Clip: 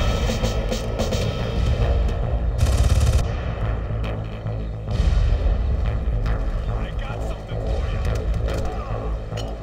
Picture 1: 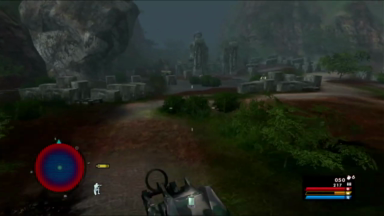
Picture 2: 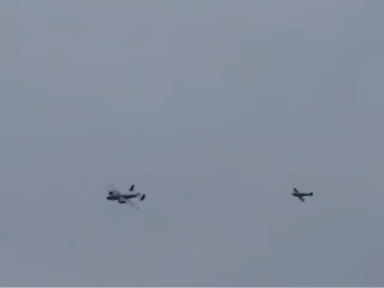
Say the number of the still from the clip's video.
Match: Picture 1